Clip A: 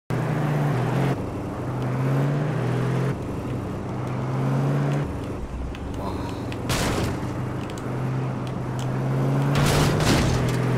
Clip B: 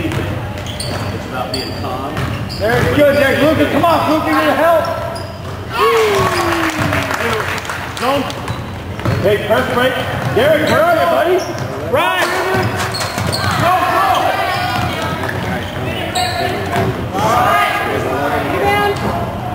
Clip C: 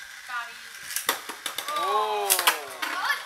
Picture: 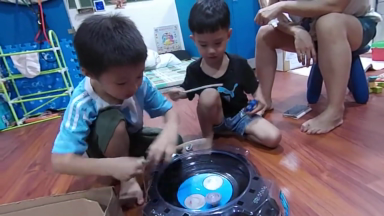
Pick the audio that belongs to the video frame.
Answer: C